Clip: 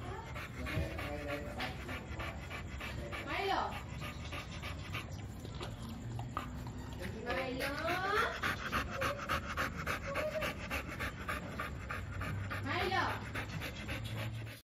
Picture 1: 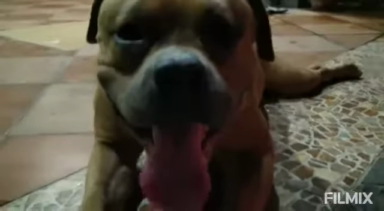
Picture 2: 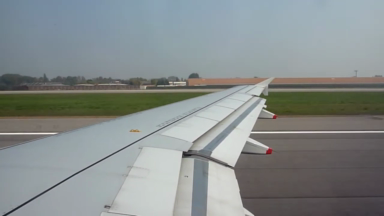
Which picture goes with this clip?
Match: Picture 1